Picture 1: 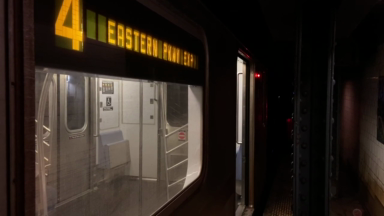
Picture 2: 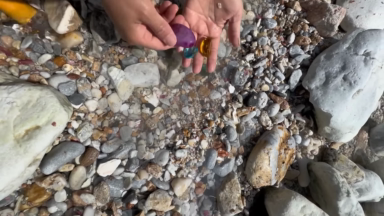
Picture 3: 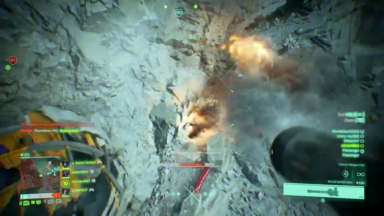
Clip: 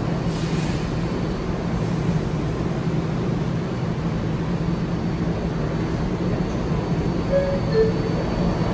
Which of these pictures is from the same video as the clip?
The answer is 1